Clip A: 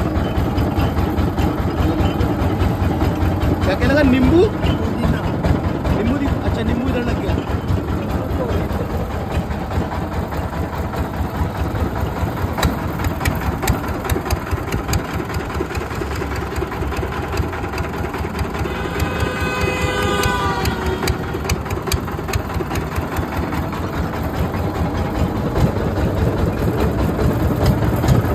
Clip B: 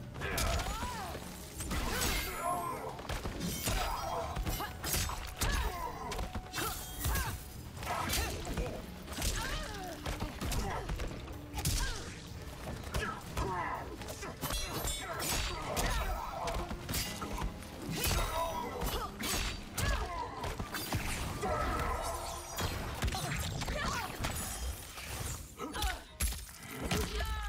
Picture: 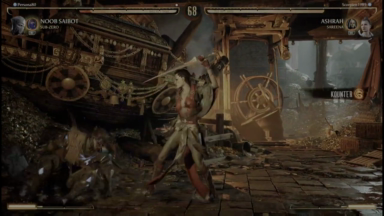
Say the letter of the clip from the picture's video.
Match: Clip B